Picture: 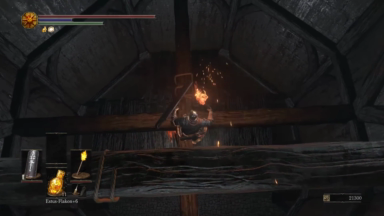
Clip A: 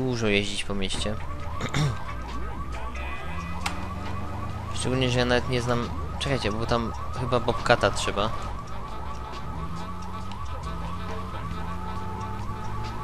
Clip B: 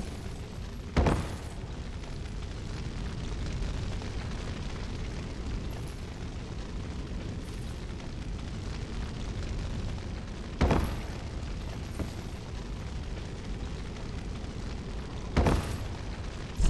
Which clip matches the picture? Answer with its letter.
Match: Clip B